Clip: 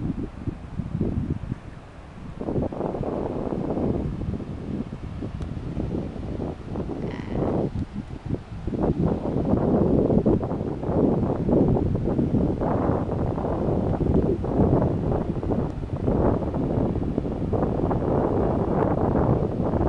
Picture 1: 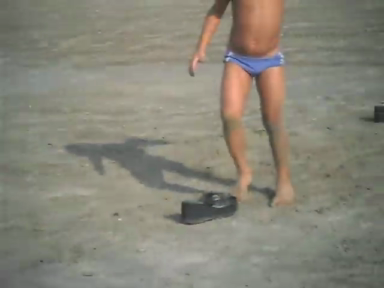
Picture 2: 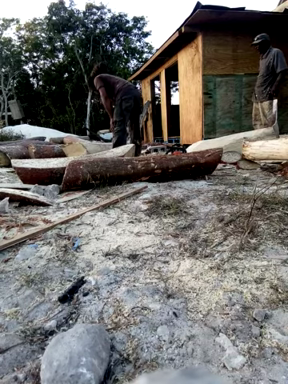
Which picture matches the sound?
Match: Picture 1